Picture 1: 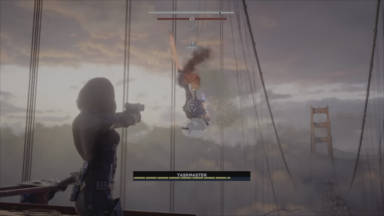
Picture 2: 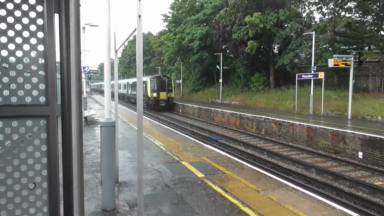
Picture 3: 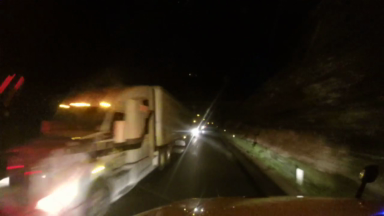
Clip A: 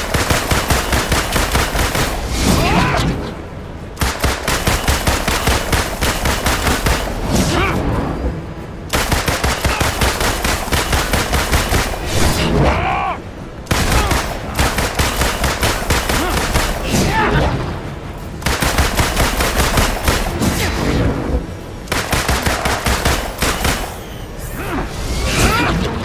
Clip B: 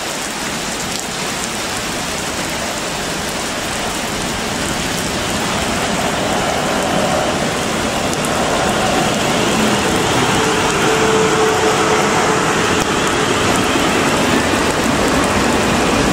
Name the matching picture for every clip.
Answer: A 1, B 2